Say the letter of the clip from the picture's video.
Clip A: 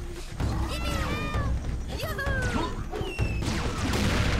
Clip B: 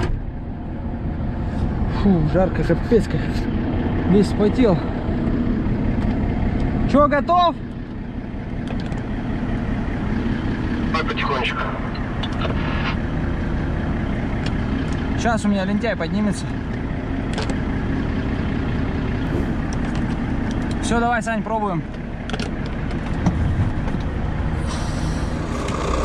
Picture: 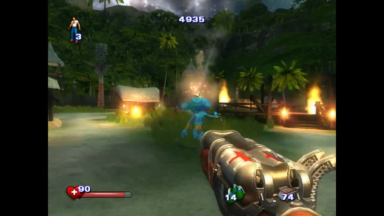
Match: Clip A